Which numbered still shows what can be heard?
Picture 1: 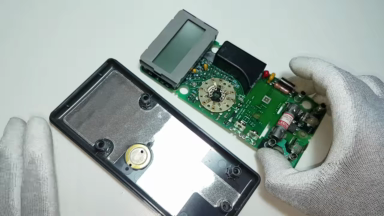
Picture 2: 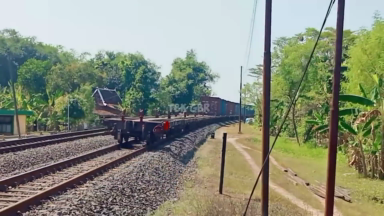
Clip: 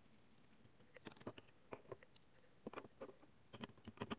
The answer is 1